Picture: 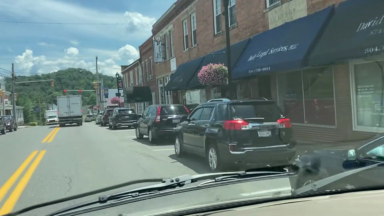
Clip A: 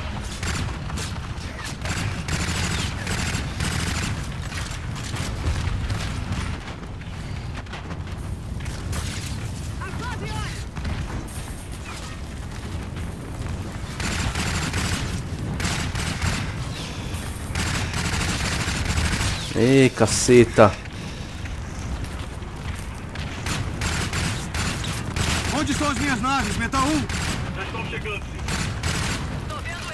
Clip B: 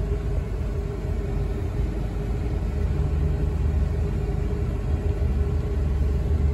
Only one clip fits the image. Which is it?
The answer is B